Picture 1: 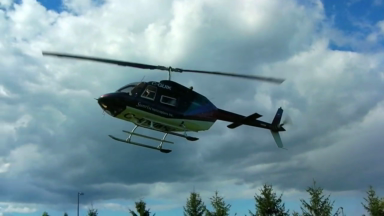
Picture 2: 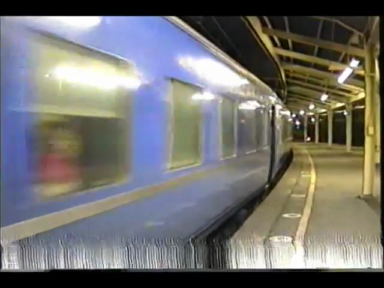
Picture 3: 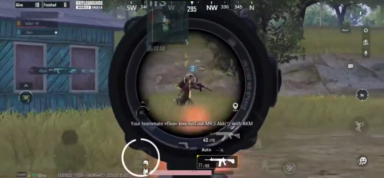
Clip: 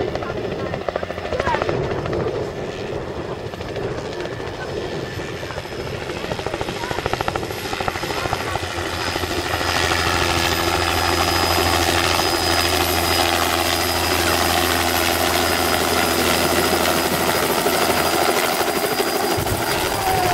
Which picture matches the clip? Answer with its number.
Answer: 1